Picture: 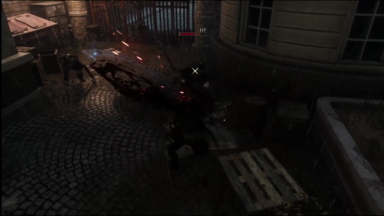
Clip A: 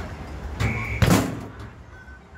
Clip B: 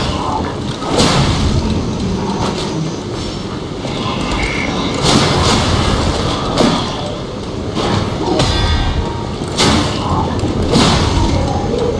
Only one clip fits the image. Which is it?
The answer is B